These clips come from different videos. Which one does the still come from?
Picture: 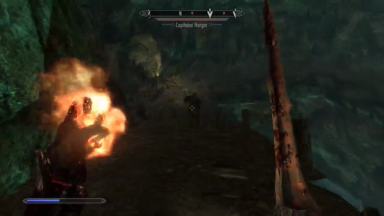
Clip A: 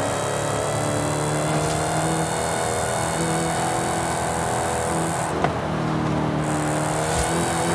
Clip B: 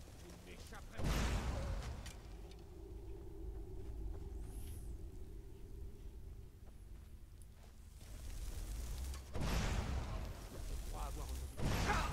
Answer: B